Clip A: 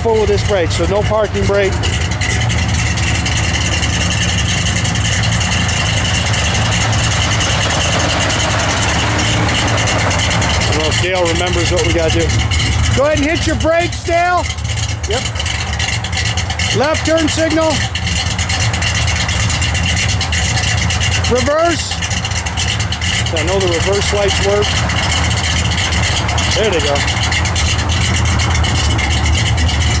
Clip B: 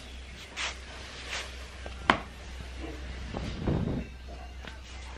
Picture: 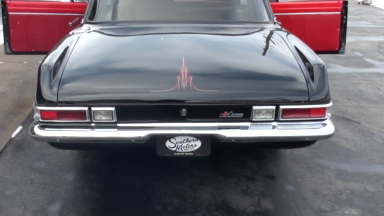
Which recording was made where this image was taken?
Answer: A